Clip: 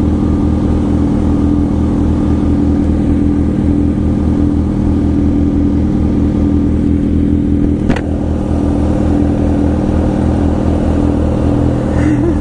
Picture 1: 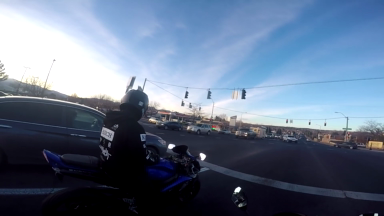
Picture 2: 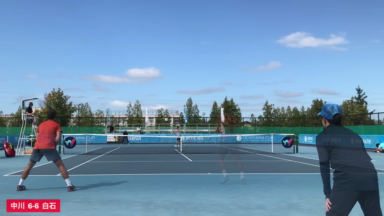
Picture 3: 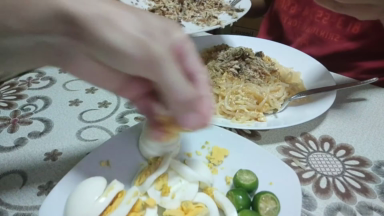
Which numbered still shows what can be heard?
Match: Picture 1